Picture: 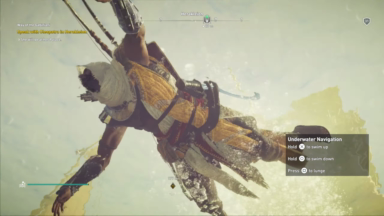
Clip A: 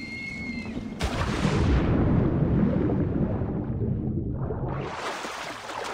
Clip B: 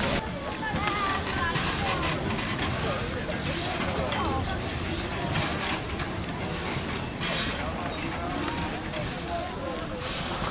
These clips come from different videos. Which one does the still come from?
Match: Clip A